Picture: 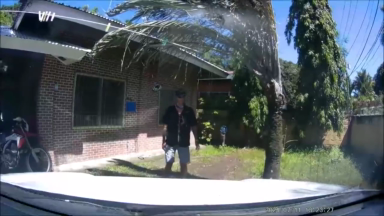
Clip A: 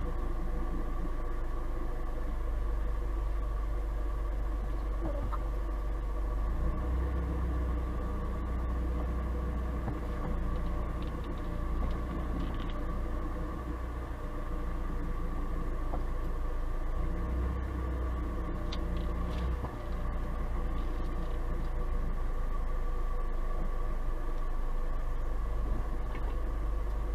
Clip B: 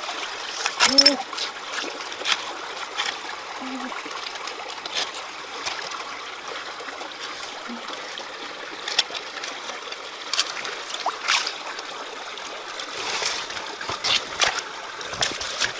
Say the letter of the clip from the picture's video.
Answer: A